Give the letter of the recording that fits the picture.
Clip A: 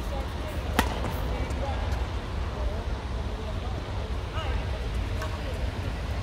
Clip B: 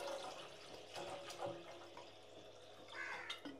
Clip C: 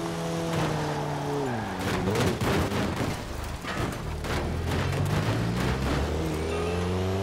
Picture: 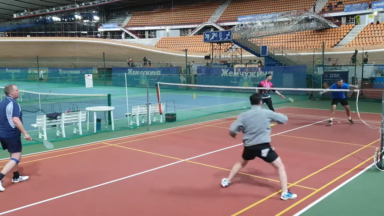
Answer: A